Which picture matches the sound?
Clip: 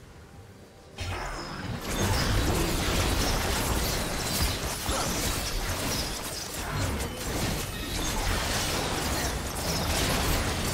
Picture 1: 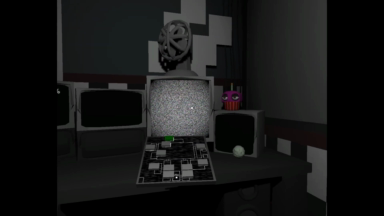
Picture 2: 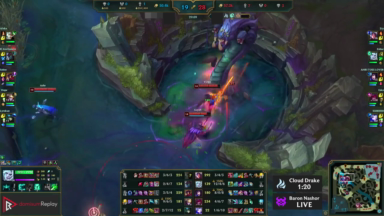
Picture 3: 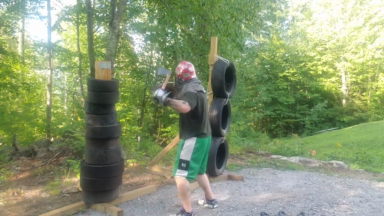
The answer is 2